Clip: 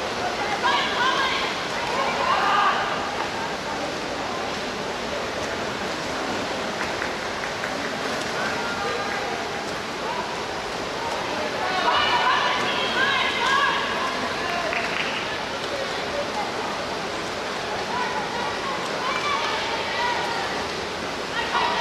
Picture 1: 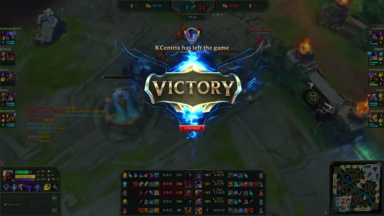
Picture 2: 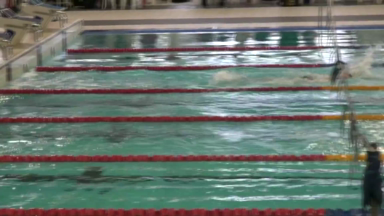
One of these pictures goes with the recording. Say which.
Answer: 2